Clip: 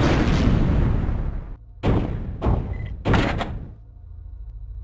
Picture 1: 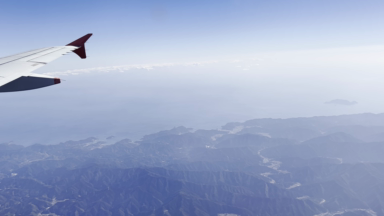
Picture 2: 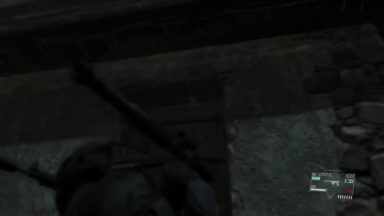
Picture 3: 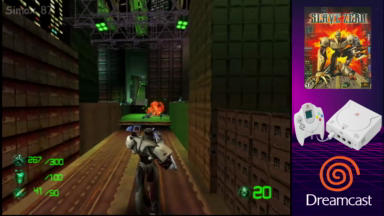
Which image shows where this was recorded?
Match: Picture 3